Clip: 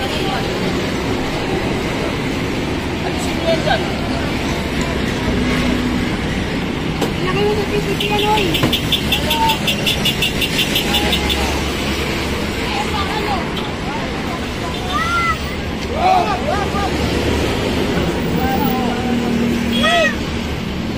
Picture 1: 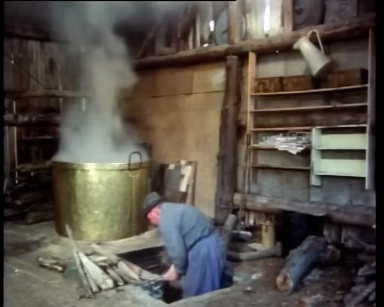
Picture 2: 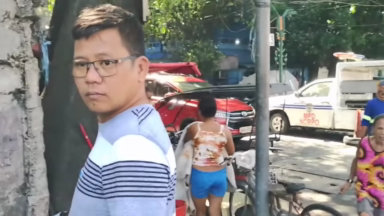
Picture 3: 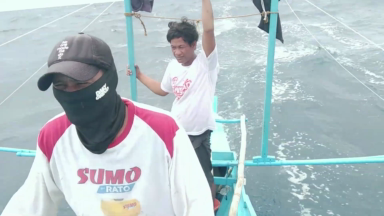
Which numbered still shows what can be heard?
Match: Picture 2